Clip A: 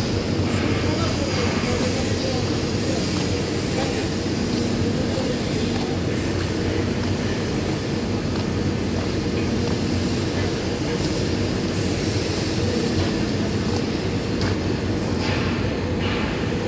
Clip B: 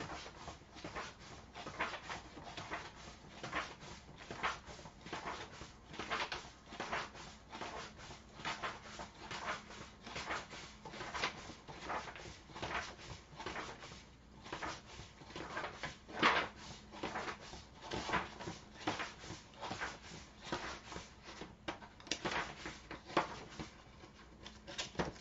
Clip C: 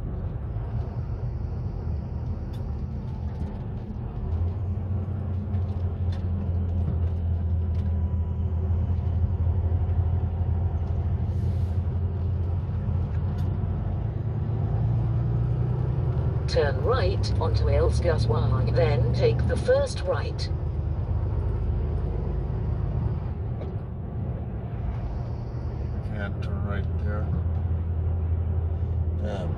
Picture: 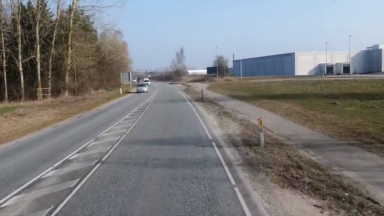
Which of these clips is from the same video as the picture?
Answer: C